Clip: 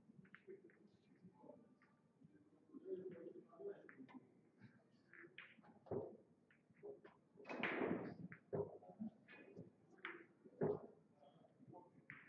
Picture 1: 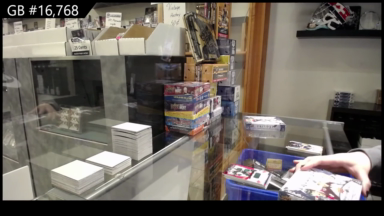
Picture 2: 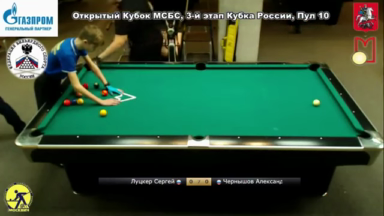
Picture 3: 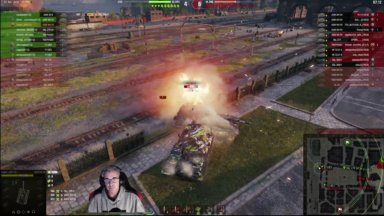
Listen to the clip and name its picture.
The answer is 2